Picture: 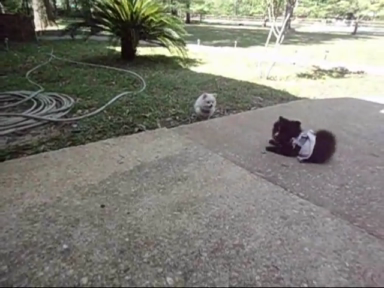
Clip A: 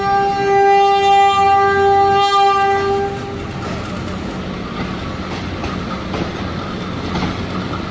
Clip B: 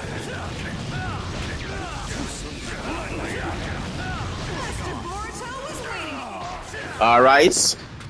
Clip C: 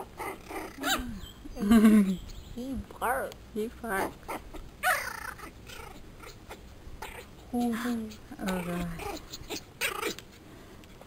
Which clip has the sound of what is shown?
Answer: C